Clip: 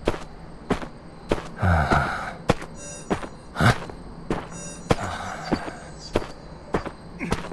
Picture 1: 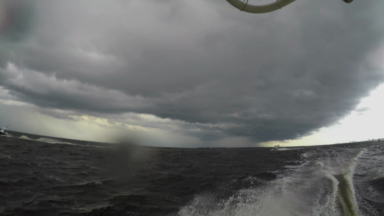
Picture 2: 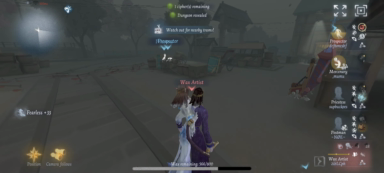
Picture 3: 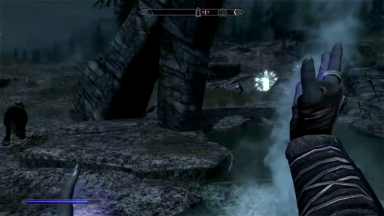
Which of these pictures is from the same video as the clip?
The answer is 2